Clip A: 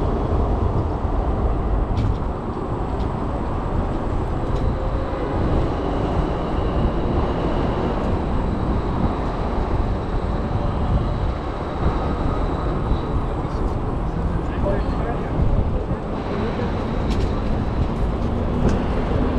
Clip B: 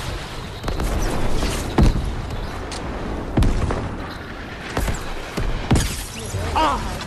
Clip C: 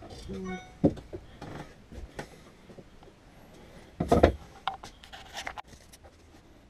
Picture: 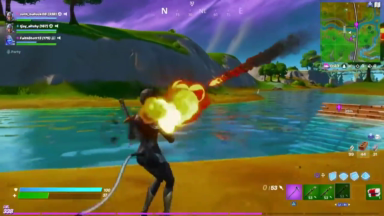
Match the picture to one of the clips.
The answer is B